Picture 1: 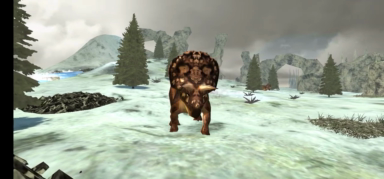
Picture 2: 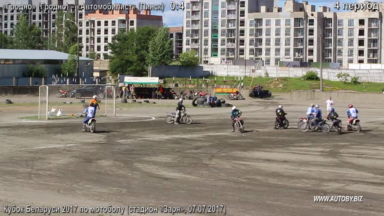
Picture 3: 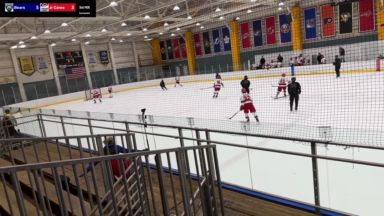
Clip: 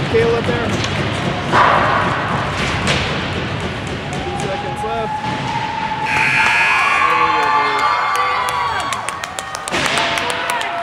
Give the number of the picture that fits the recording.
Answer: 3